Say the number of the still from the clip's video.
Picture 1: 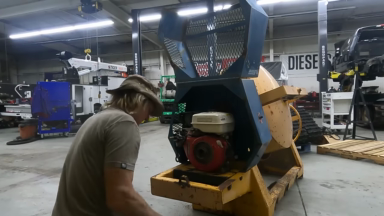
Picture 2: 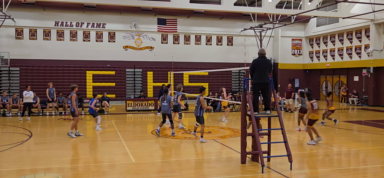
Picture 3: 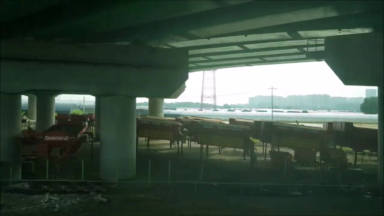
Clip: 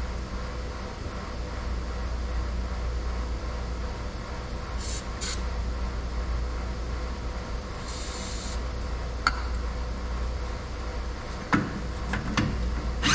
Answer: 1